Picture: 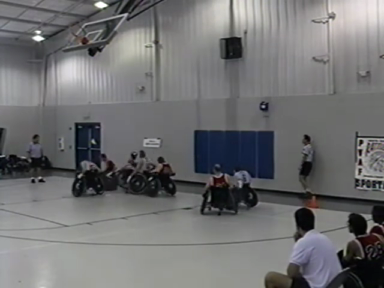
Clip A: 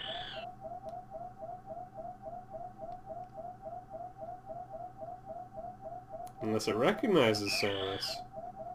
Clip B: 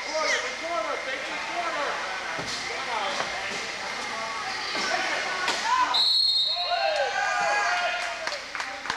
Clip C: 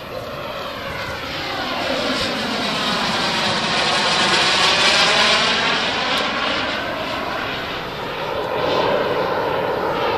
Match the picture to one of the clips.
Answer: B